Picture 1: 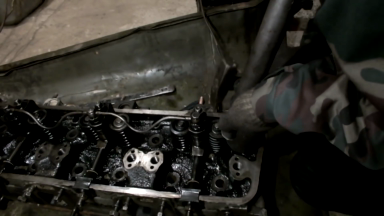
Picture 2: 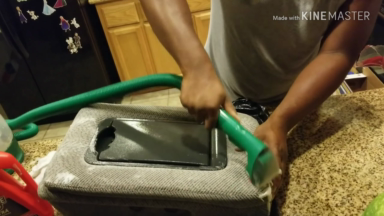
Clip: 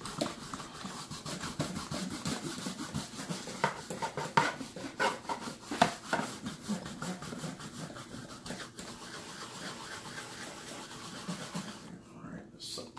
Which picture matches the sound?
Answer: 2